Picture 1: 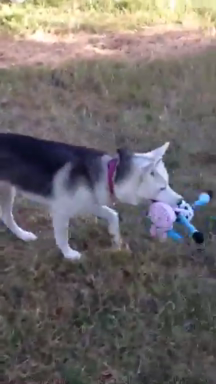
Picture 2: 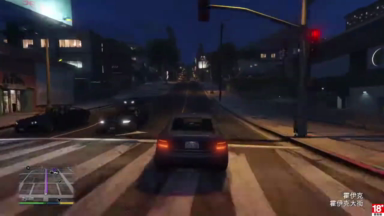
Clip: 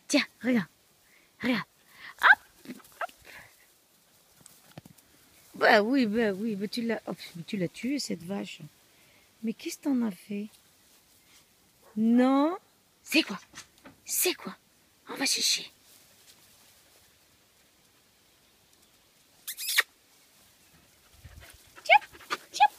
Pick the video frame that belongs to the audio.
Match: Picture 1